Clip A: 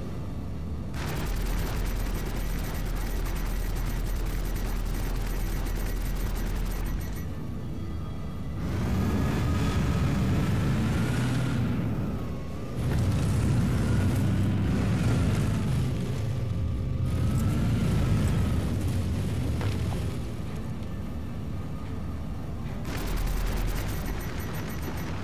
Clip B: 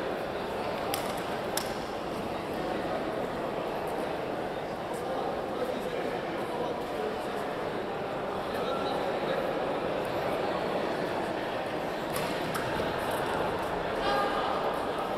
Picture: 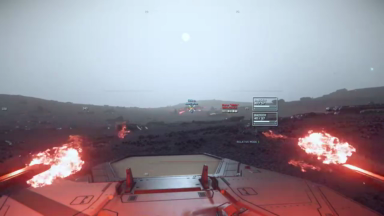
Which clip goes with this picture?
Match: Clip A